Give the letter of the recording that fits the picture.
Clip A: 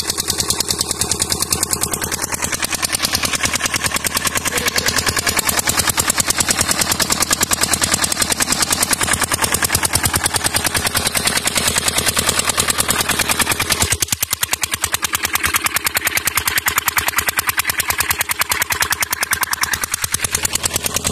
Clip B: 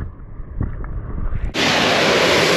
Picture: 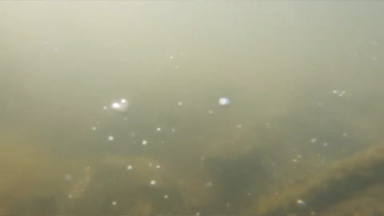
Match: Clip B